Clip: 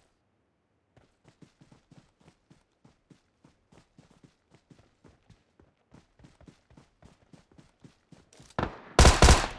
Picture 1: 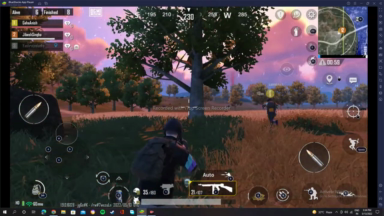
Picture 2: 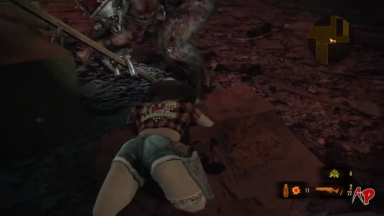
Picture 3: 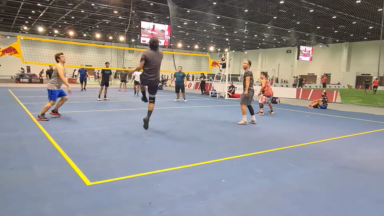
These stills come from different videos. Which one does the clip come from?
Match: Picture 1